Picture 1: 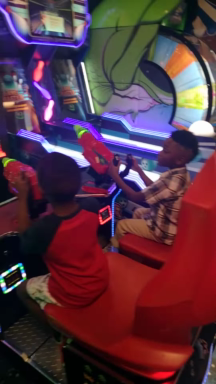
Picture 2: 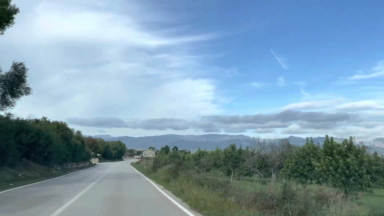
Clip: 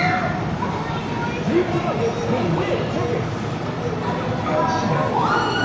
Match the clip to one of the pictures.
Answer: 1